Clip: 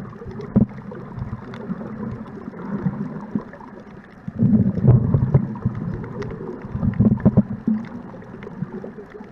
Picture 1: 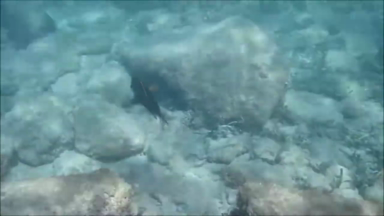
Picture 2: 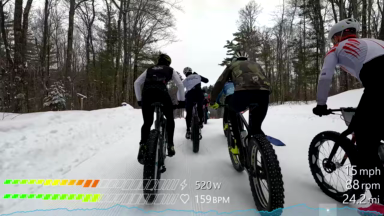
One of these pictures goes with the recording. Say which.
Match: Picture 1